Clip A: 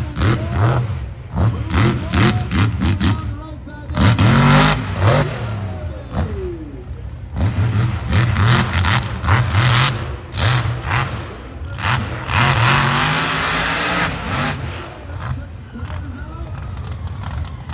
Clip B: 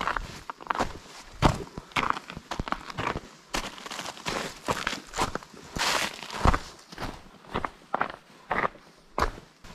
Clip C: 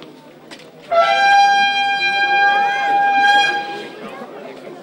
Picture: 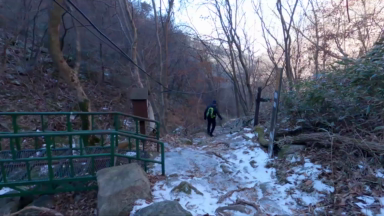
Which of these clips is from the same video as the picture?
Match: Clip B